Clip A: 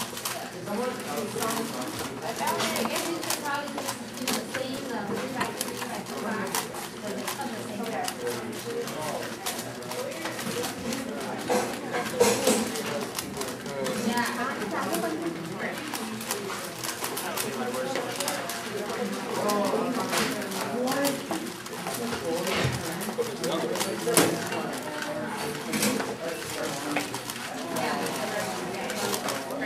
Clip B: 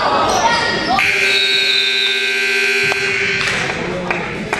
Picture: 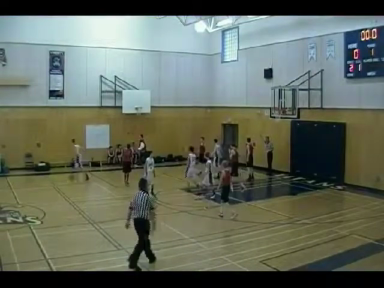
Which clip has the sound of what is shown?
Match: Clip B